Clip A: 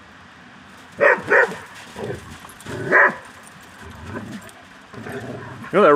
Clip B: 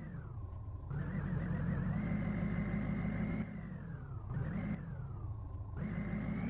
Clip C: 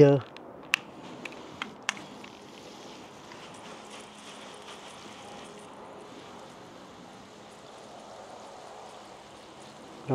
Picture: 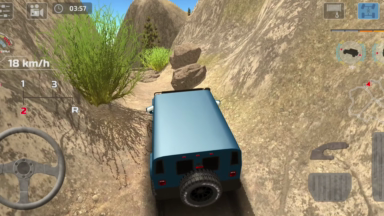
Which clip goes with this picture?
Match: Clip B